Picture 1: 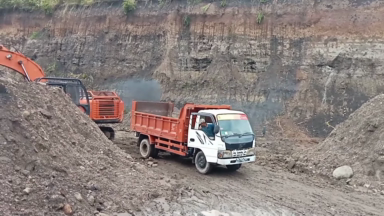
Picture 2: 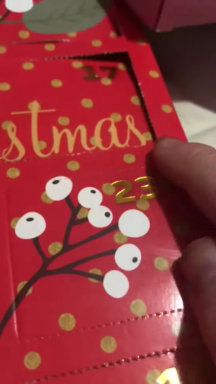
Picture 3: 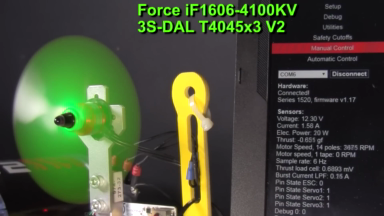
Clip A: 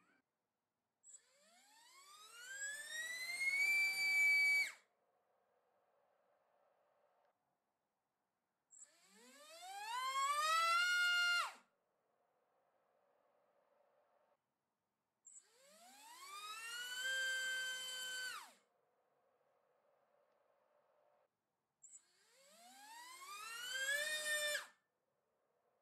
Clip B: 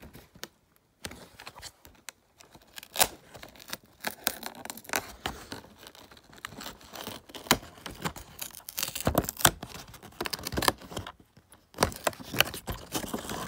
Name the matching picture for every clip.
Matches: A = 3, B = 2